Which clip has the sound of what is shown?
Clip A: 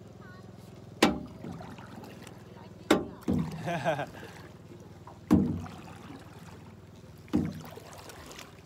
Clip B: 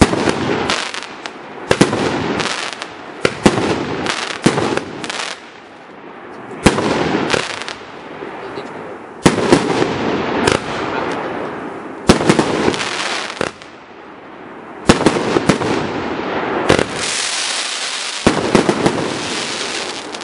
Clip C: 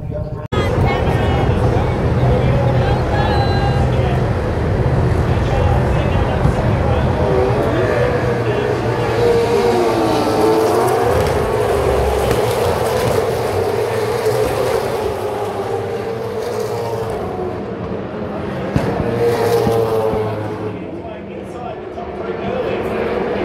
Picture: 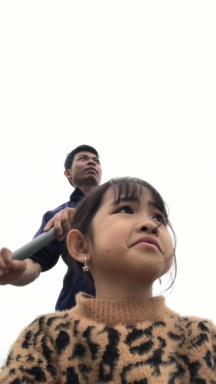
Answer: A